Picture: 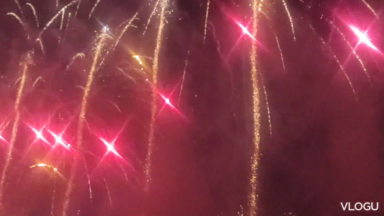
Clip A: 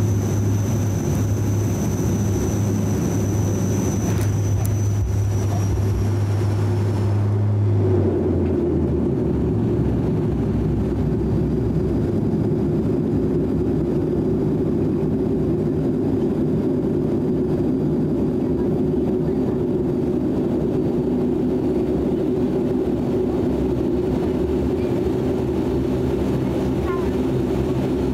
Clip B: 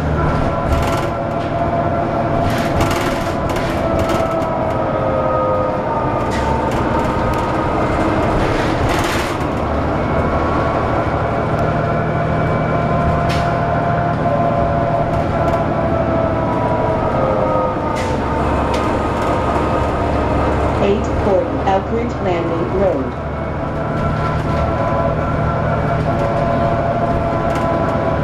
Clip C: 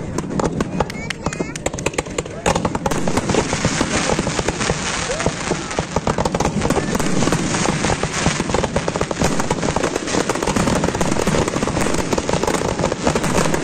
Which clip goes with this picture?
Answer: C